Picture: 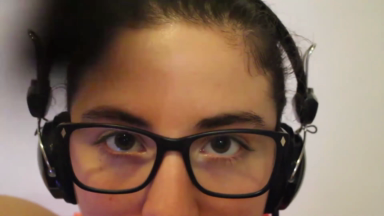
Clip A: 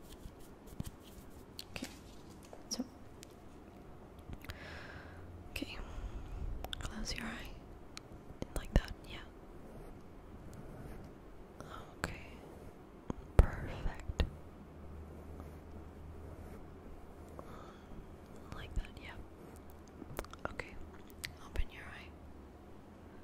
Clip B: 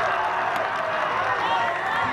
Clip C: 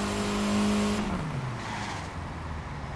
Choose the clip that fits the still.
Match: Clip A